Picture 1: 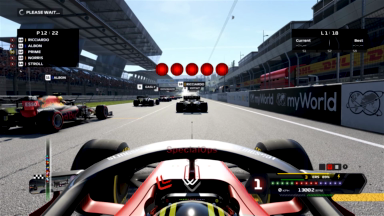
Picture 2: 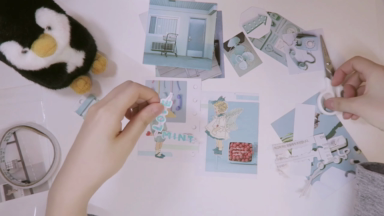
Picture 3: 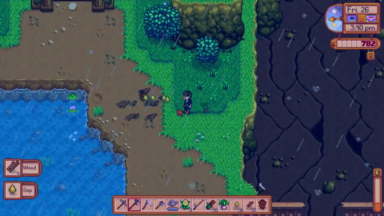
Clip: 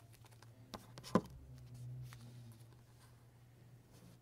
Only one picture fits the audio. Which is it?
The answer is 2